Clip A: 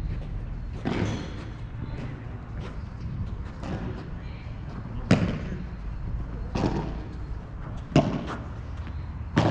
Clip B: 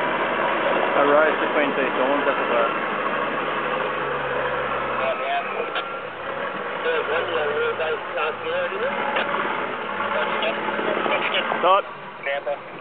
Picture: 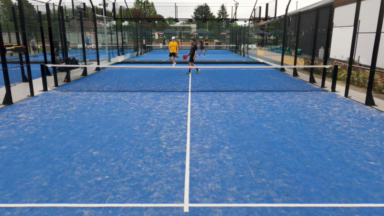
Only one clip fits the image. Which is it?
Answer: A